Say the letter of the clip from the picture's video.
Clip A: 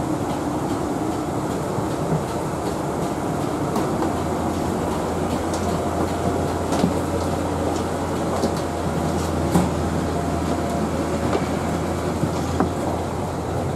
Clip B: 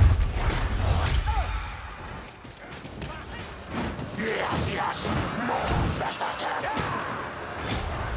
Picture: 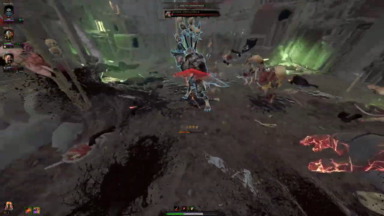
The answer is B